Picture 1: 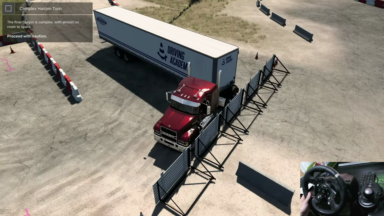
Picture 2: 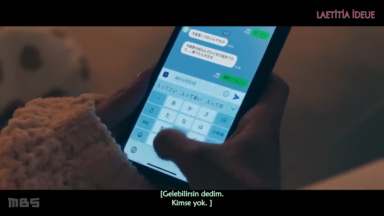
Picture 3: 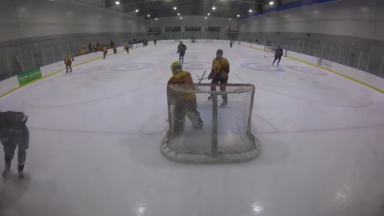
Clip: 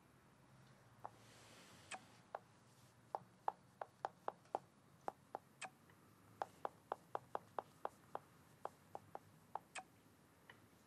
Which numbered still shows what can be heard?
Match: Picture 2